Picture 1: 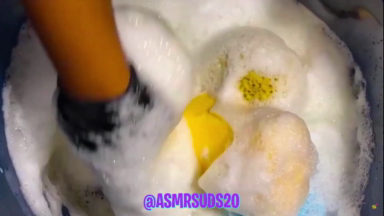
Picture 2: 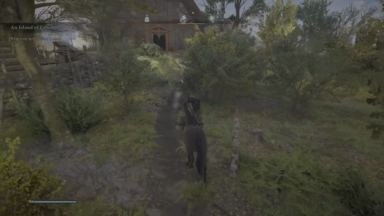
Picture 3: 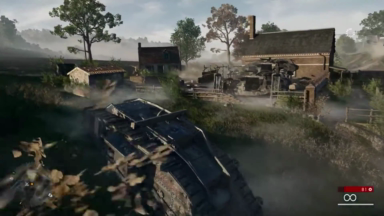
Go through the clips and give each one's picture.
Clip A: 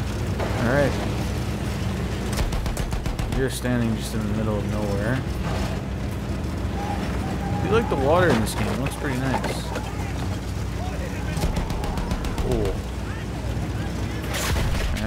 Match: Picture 3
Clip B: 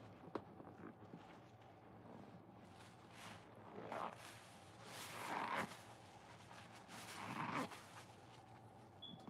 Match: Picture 1